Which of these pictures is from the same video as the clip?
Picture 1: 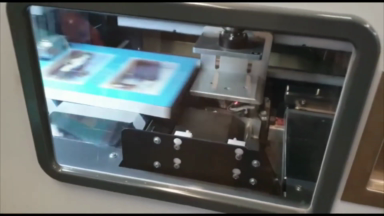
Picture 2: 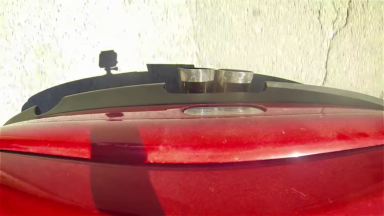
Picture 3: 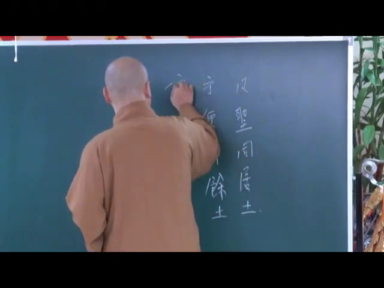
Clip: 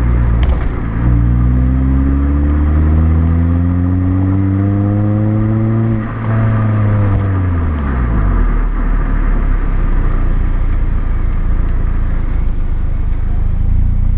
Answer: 2